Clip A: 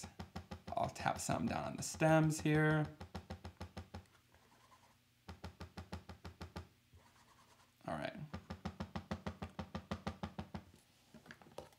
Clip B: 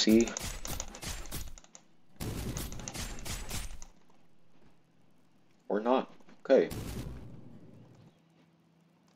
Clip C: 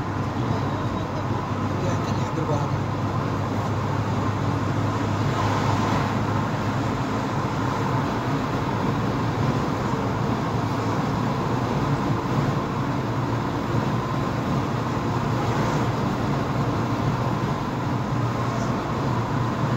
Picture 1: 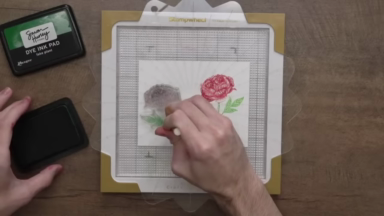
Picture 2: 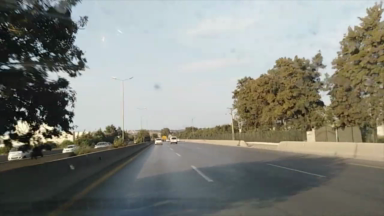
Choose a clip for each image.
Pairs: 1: A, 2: C